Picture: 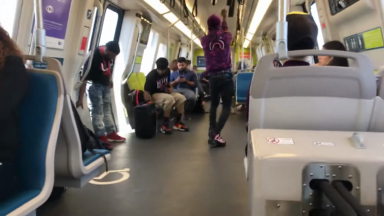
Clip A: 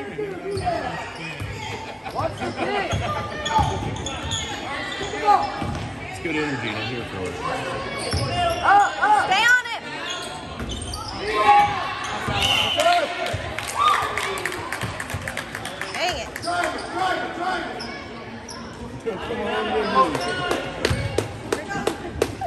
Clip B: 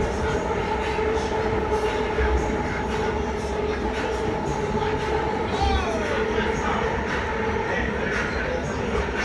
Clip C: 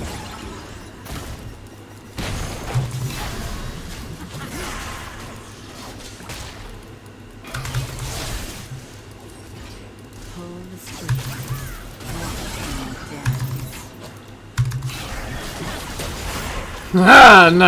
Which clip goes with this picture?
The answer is B